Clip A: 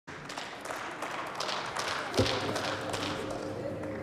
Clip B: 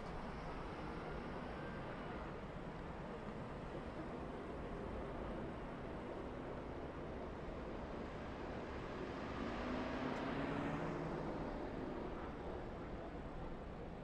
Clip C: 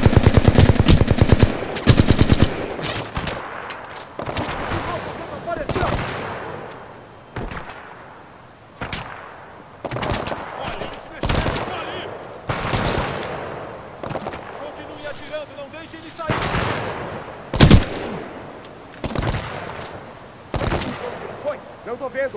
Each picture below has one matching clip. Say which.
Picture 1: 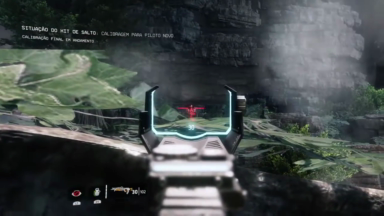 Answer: C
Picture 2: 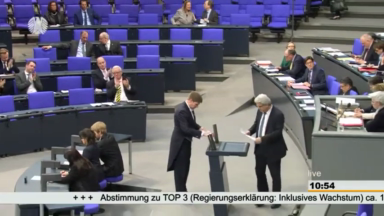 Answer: A